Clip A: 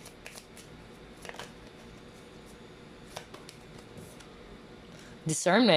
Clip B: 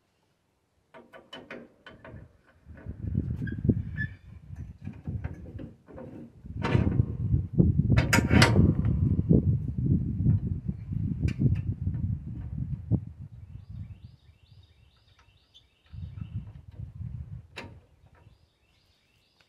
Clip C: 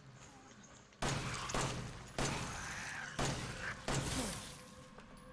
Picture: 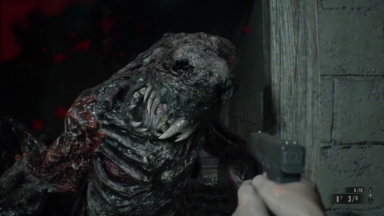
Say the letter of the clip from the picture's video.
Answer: C